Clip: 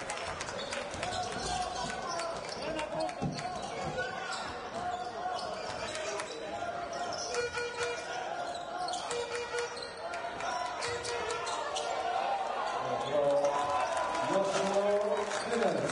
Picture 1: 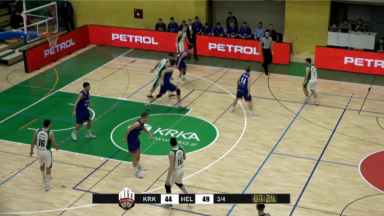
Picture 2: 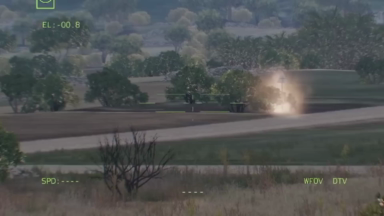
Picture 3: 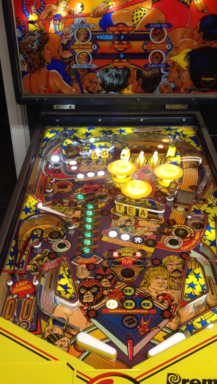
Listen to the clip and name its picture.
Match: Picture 1